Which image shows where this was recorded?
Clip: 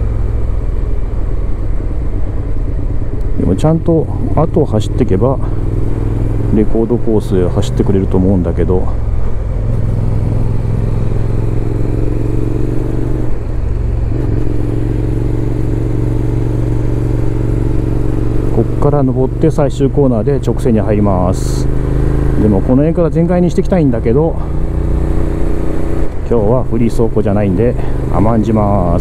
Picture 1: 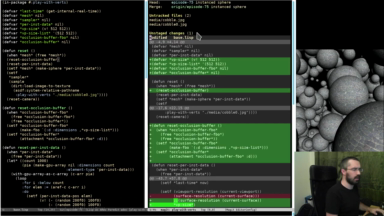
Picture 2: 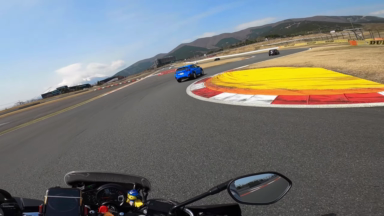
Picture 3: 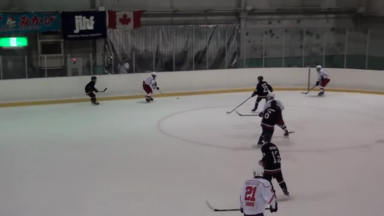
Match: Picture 2